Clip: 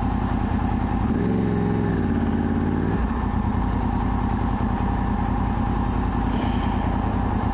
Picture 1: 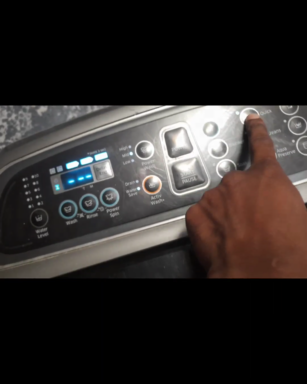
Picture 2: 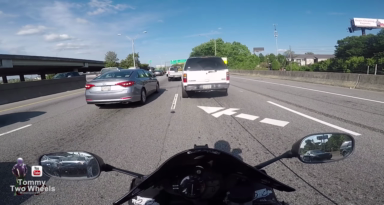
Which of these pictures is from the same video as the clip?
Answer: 2